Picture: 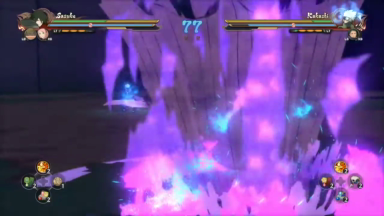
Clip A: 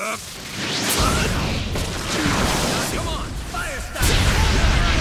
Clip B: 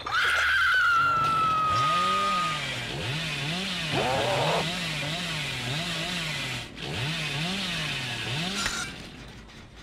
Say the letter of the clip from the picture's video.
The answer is A